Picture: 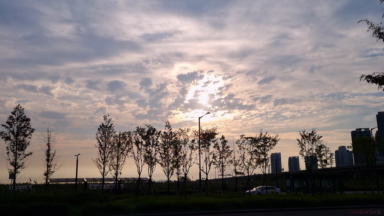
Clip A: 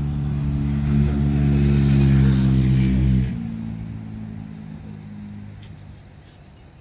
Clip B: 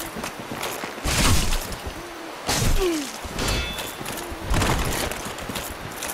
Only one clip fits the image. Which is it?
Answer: A